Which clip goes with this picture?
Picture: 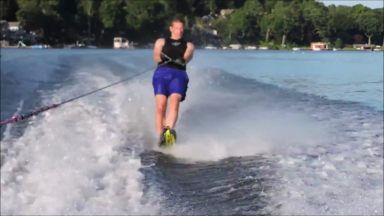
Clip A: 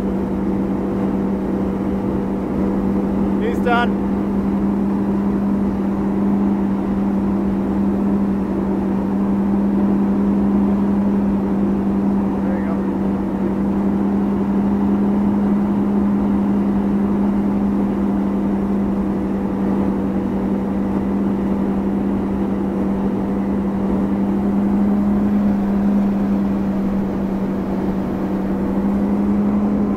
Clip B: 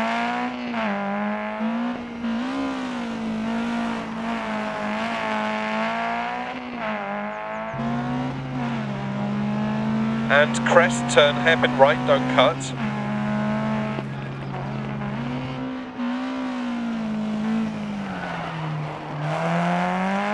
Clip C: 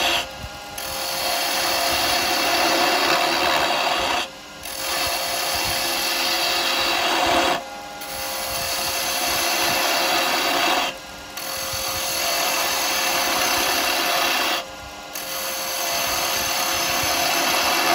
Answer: A